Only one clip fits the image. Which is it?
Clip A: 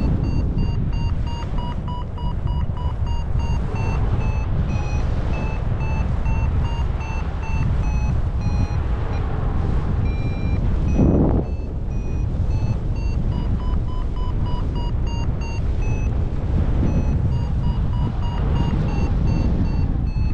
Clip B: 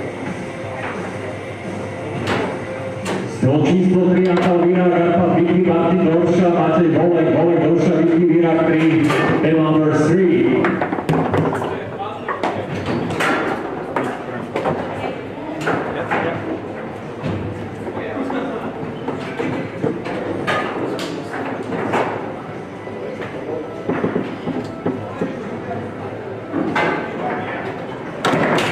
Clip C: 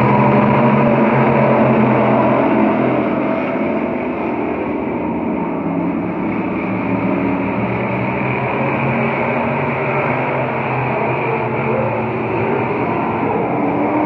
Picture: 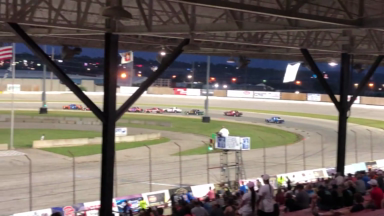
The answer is C